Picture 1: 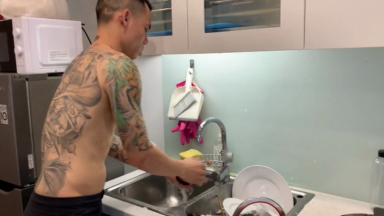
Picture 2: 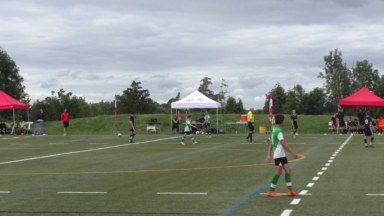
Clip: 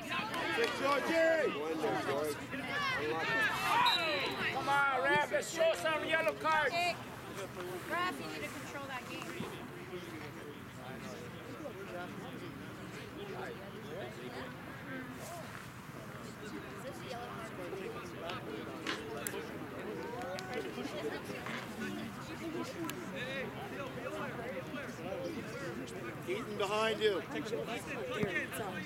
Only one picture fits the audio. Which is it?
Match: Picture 2